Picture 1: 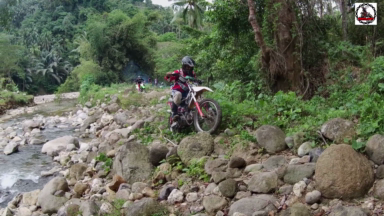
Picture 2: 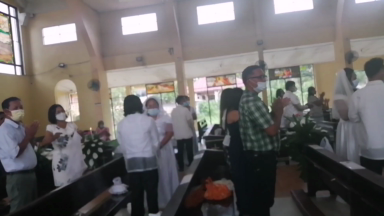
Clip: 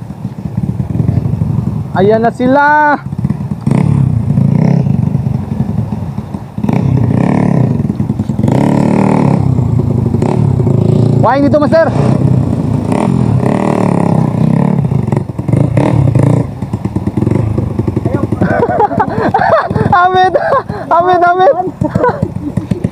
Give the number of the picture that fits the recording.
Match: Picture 1